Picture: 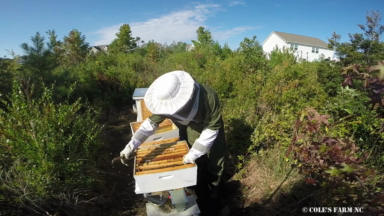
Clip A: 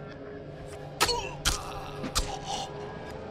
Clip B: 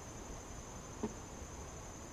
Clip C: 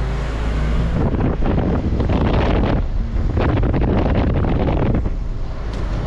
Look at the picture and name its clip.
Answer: B